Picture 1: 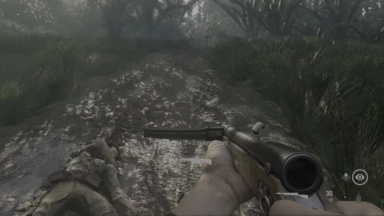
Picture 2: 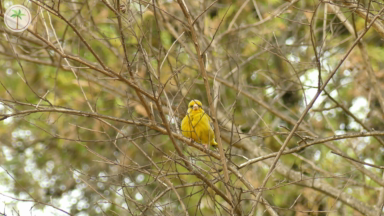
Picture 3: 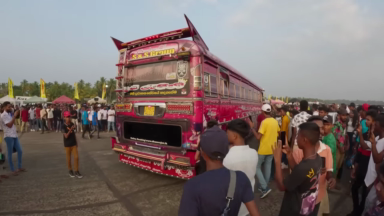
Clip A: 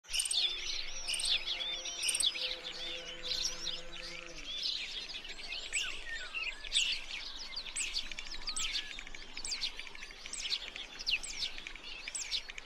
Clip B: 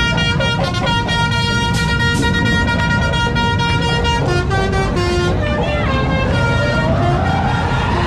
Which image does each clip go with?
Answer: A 2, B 3